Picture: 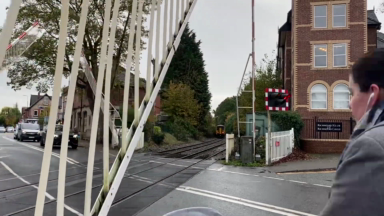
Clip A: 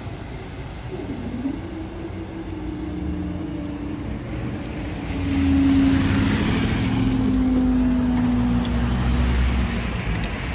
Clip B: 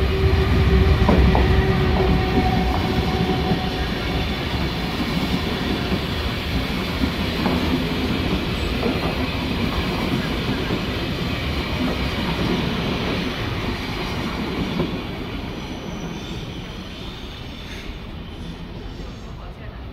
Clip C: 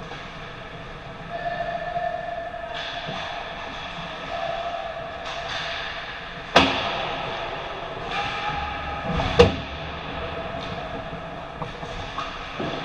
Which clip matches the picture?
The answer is A